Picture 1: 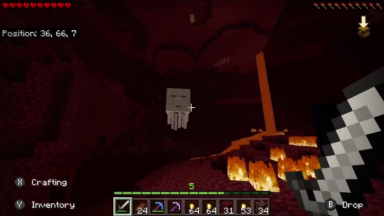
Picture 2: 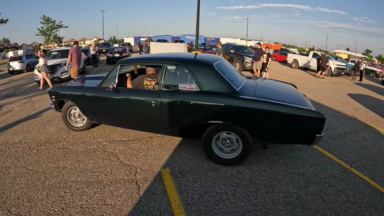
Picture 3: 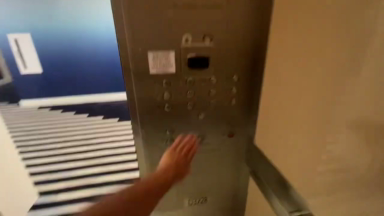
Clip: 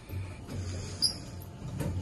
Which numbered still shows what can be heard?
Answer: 3